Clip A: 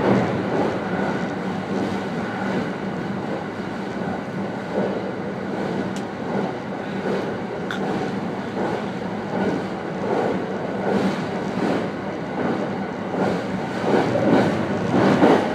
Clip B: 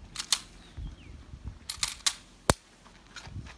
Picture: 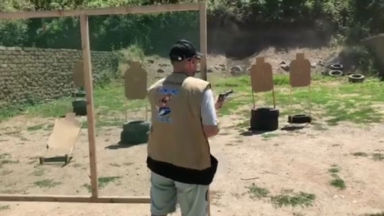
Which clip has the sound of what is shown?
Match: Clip B